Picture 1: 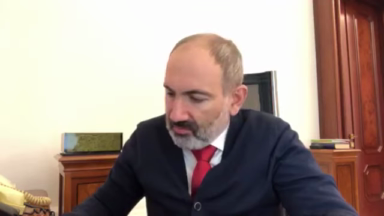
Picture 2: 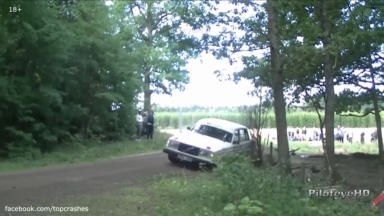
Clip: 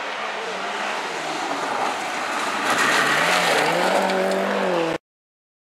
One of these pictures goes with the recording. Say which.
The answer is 2